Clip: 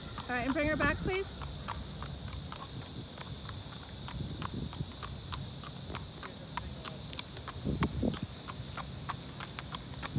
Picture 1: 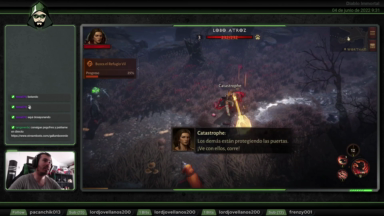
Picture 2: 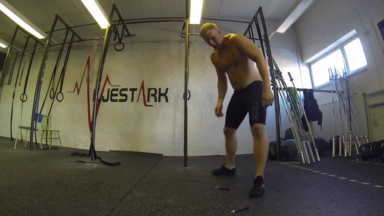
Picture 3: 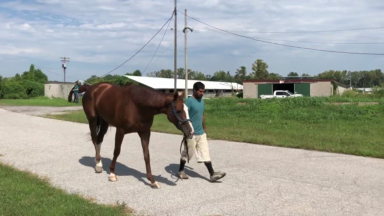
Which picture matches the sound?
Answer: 3